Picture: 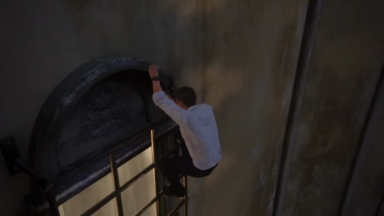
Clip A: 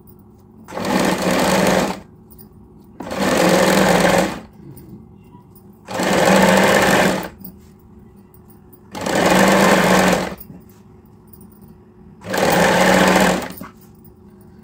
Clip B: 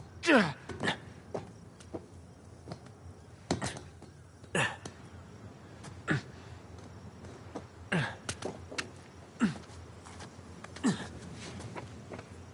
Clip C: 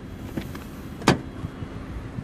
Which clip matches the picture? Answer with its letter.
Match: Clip B